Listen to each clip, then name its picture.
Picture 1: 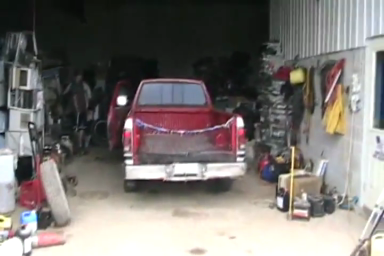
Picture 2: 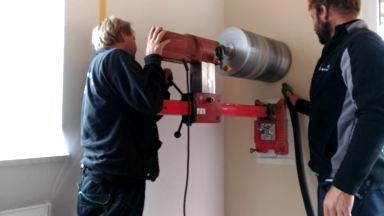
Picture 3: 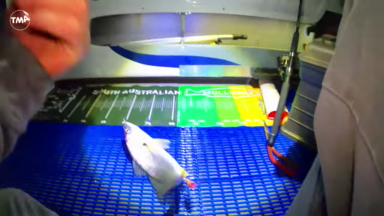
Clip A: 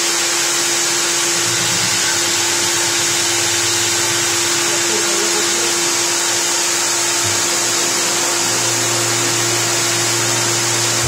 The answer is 2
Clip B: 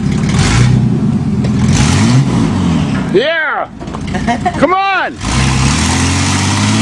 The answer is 1